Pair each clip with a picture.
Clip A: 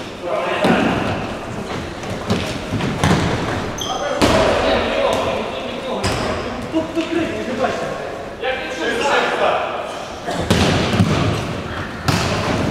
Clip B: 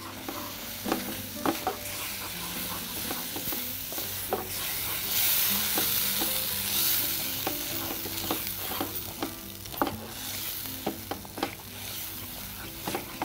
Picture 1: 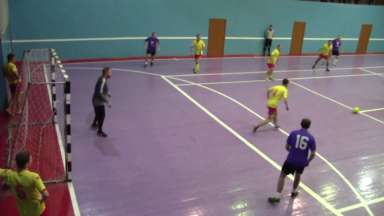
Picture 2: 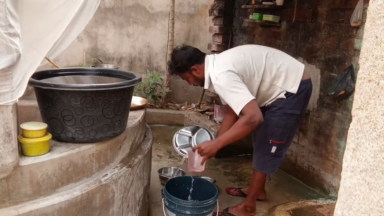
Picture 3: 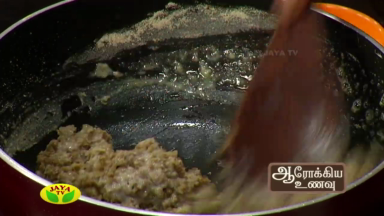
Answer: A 1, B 3